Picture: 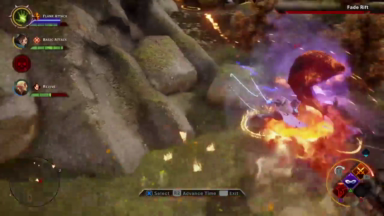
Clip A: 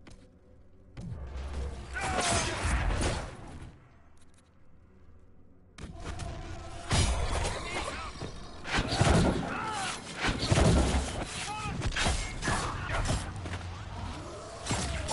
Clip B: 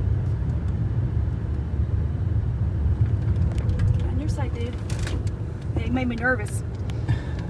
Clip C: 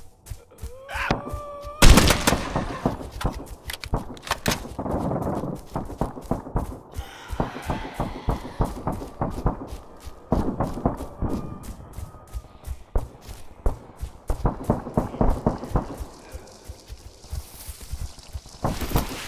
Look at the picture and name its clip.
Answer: A